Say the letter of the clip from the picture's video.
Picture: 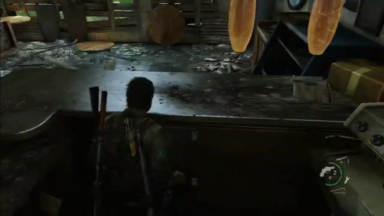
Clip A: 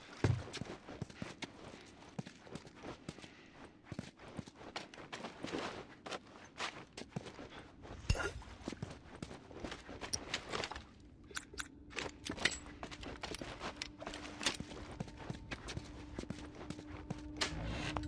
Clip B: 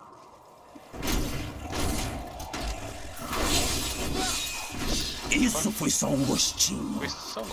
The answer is A